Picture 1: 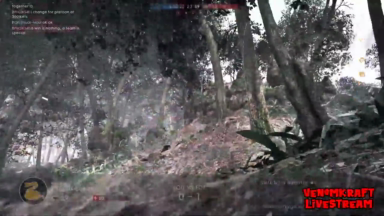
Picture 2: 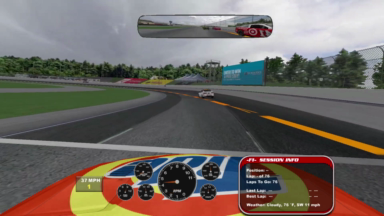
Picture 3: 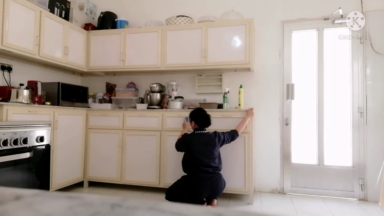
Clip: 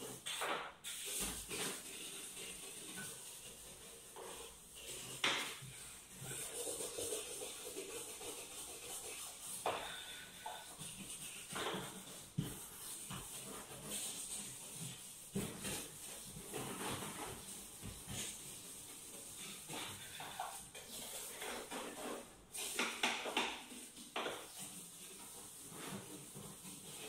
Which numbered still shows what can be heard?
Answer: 3